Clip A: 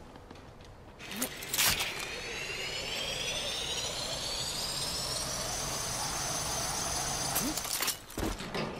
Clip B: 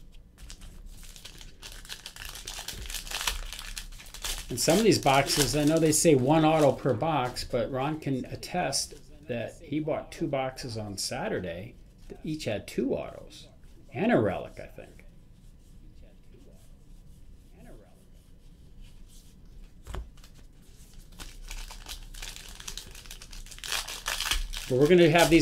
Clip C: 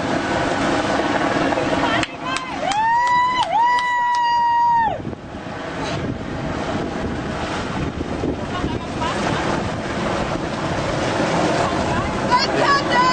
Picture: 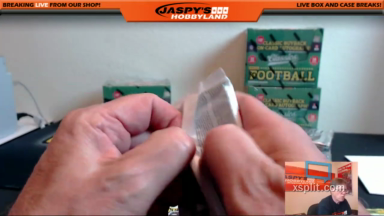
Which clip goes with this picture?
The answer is B